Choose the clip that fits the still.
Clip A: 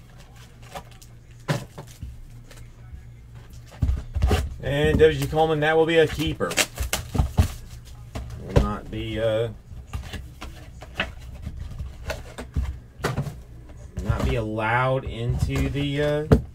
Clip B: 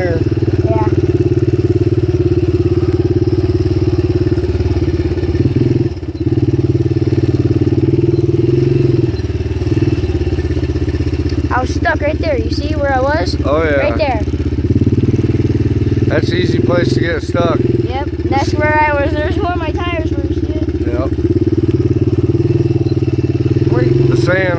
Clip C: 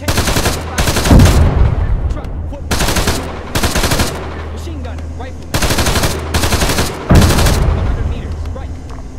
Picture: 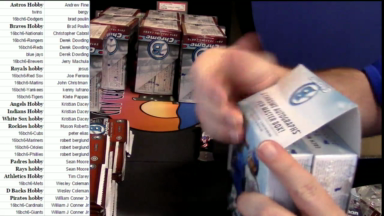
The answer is A